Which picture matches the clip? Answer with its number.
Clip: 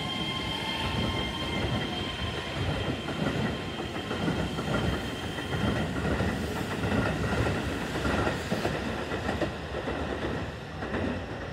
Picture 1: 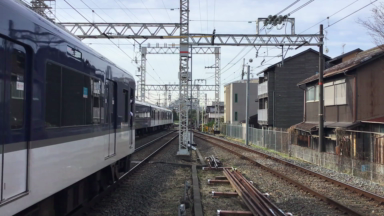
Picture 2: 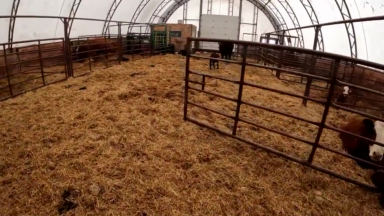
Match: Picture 1